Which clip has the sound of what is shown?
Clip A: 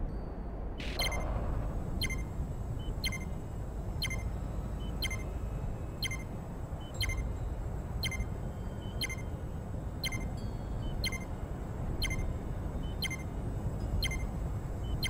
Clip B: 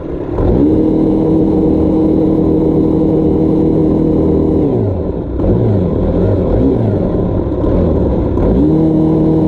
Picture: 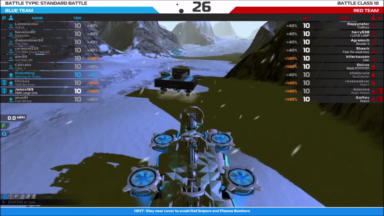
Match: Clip A